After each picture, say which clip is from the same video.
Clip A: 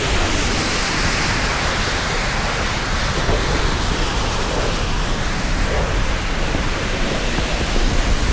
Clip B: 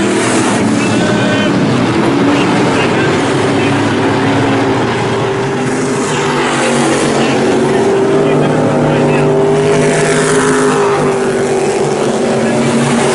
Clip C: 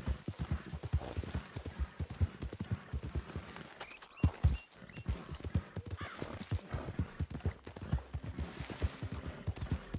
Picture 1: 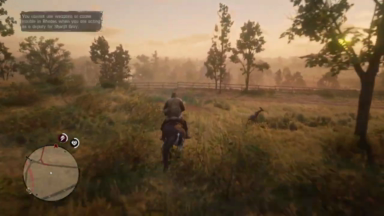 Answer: C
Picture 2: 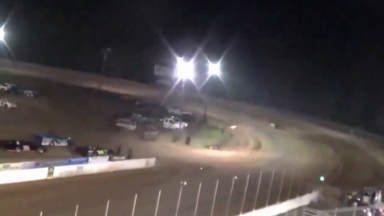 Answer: B